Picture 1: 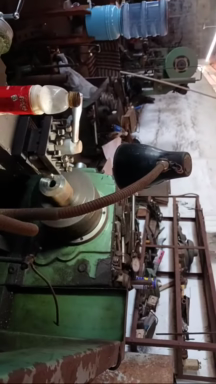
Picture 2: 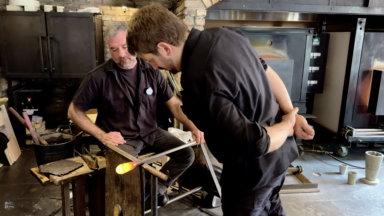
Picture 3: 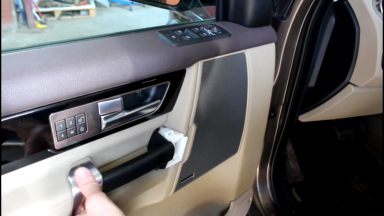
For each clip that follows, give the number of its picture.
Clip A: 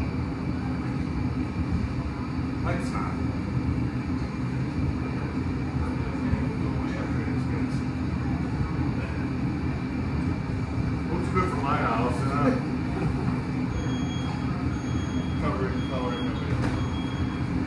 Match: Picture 2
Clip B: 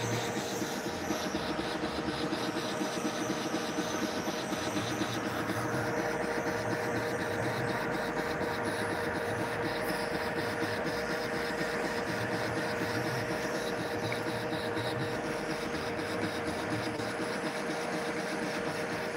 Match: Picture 1